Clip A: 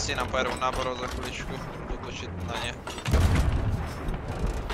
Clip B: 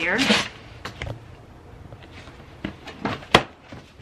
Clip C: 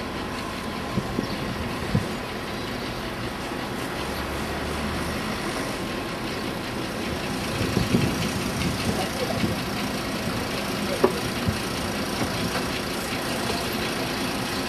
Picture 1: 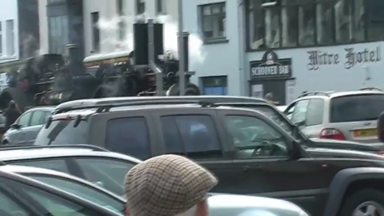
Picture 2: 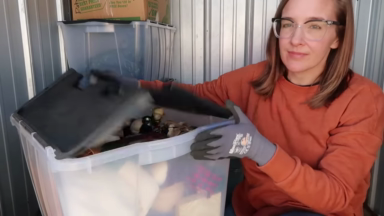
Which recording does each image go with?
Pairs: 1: C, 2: B